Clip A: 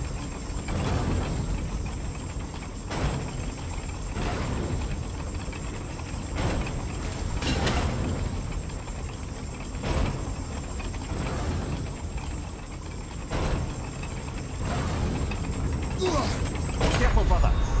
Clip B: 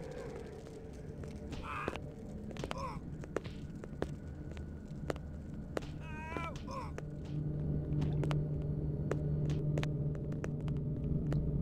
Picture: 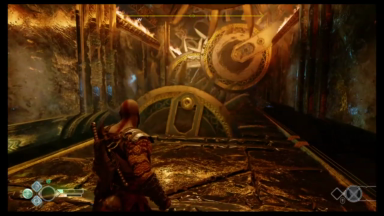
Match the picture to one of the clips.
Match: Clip A